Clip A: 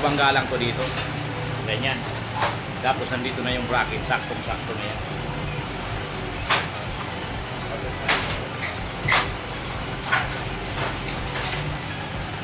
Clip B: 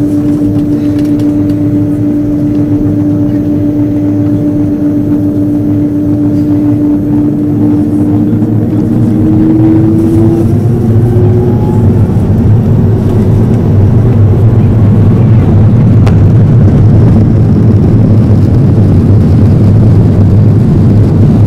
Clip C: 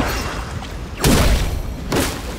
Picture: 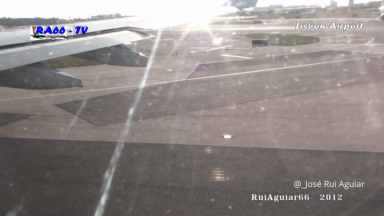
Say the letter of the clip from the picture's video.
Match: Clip B